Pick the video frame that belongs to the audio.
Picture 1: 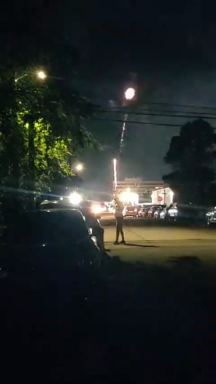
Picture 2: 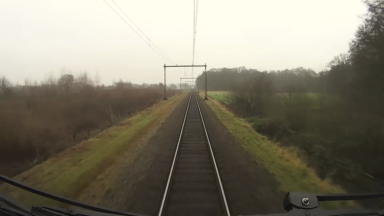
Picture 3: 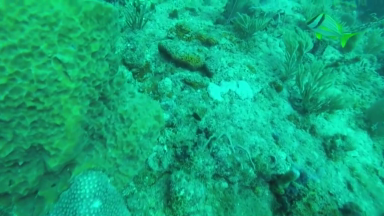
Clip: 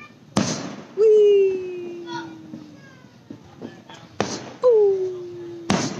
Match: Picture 1